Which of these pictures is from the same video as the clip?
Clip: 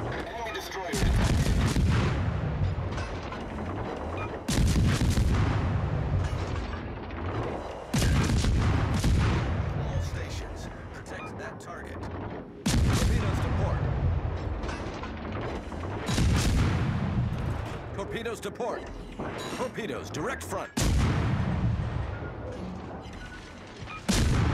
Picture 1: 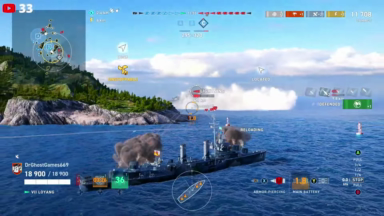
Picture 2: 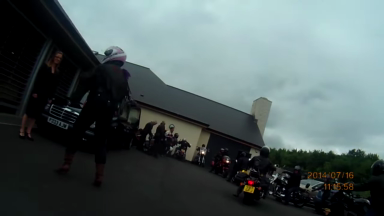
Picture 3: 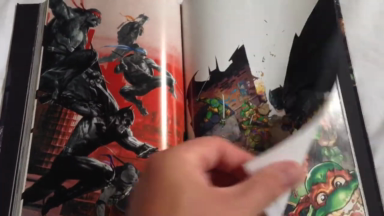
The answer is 1